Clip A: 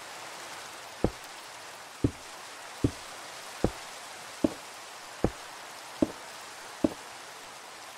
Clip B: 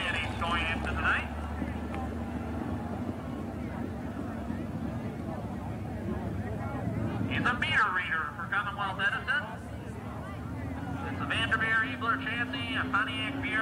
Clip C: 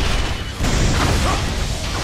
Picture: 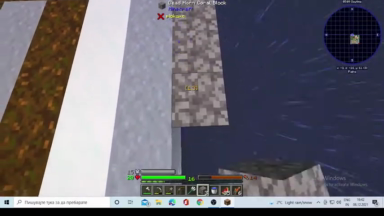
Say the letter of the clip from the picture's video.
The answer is A